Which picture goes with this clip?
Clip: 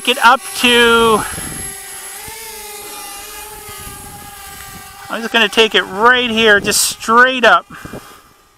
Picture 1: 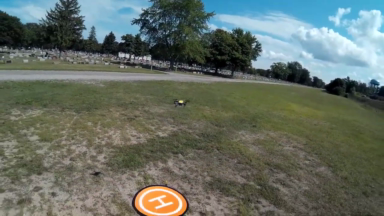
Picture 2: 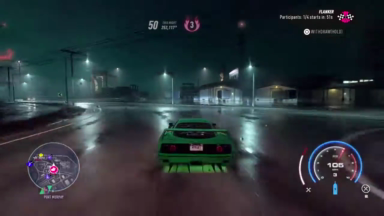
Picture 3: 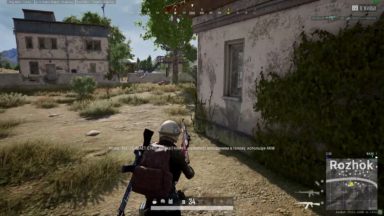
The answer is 1